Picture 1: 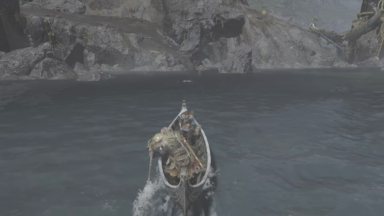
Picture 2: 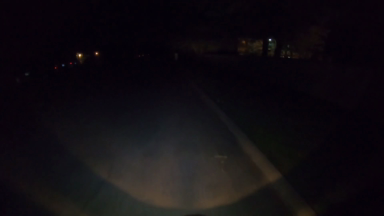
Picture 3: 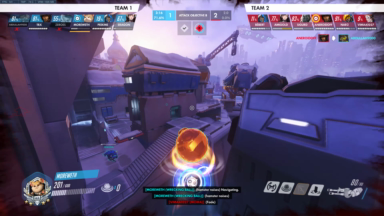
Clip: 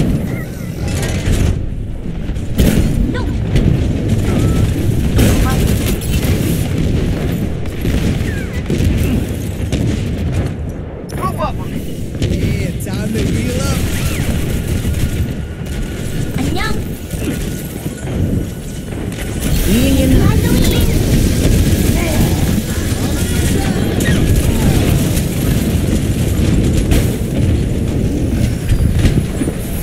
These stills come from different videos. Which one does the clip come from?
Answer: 3